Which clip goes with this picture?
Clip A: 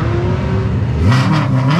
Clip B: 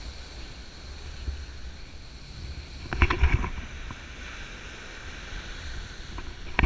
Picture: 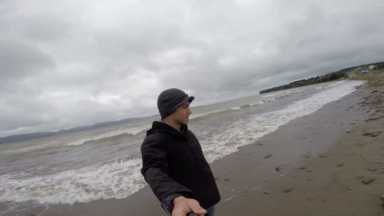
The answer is B